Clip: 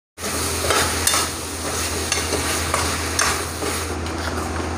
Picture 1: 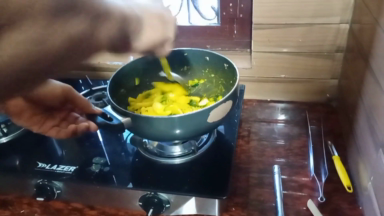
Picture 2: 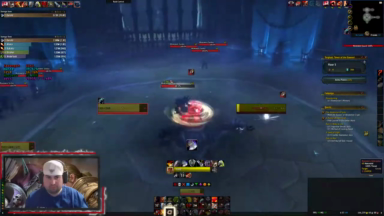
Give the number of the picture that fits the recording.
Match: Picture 1